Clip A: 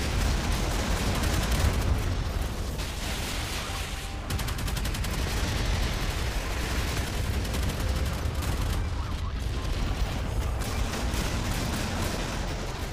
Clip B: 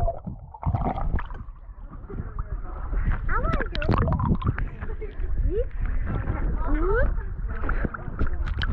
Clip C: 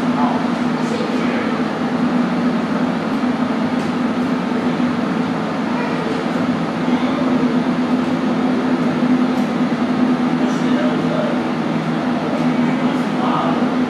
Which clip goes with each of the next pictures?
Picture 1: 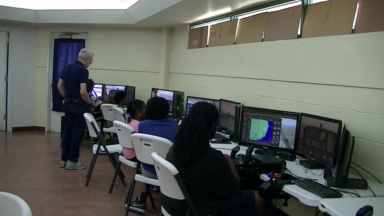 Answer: C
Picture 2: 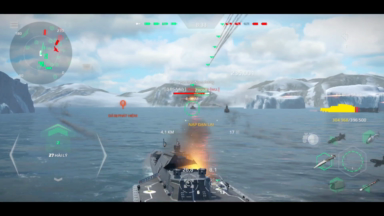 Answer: A